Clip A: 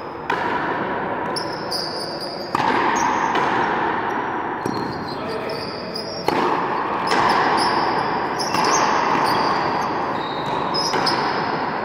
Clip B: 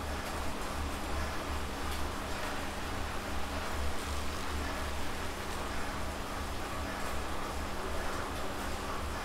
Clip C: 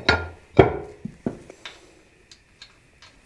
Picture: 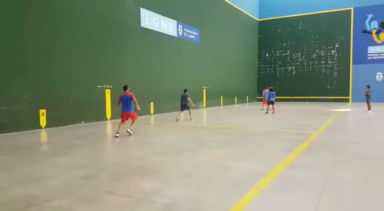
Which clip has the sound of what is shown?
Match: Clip A